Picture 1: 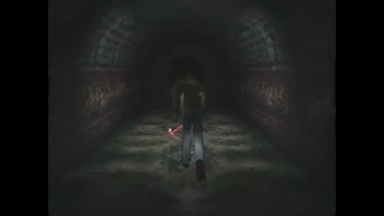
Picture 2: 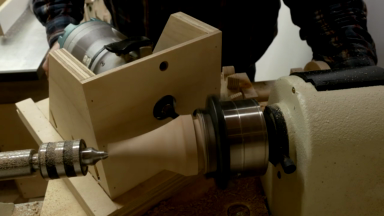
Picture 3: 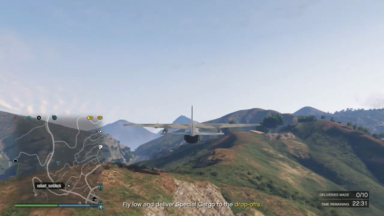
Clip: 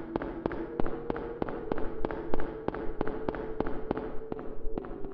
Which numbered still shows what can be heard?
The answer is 1